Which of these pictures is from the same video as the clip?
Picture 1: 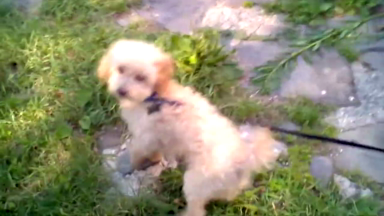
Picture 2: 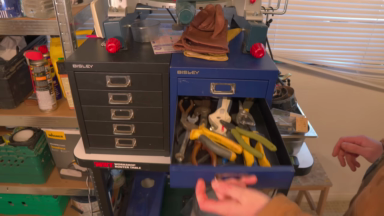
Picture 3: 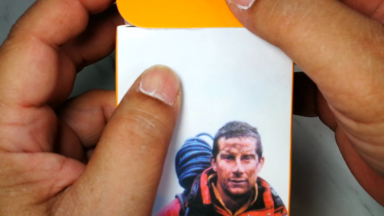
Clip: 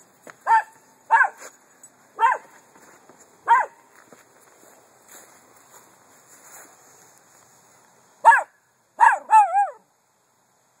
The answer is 1